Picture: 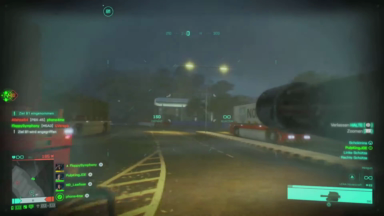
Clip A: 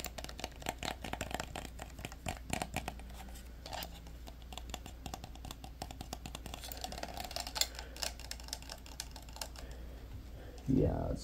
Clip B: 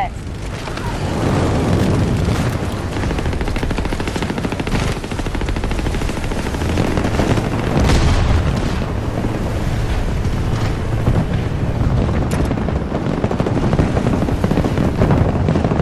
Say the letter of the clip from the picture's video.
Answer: B